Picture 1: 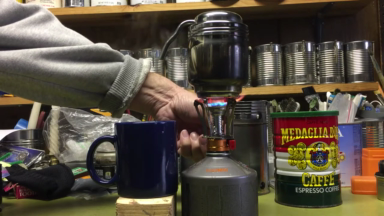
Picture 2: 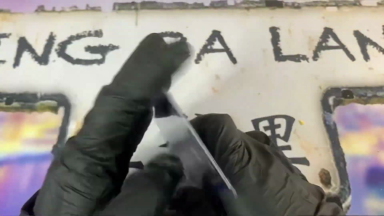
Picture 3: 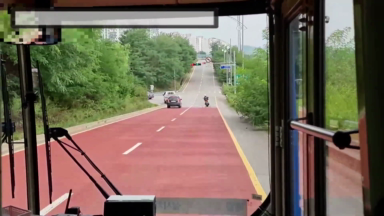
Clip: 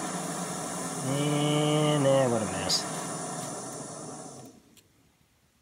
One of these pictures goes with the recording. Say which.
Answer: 1